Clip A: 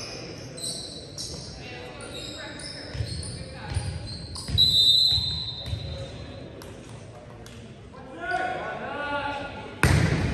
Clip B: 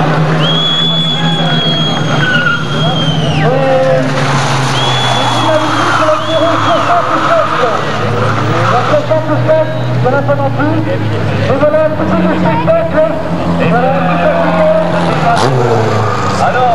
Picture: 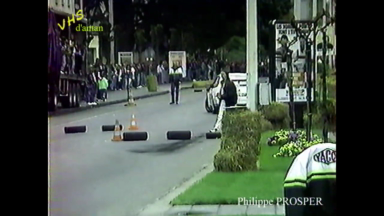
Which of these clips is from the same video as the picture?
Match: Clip B